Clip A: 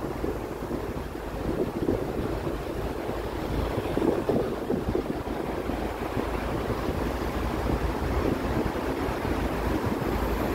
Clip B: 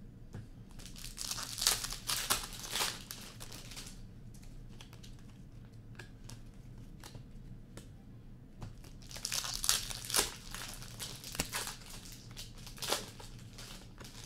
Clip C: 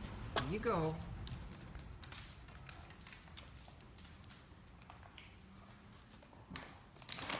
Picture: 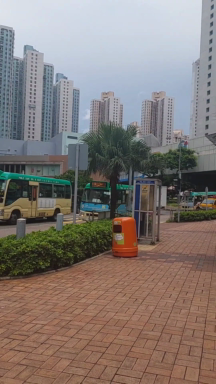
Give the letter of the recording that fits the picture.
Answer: A